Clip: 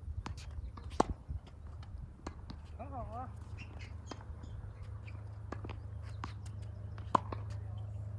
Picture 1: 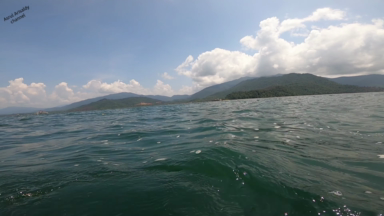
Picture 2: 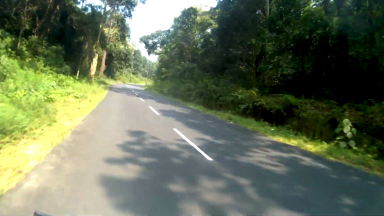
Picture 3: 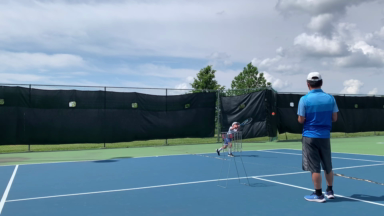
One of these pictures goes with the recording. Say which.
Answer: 3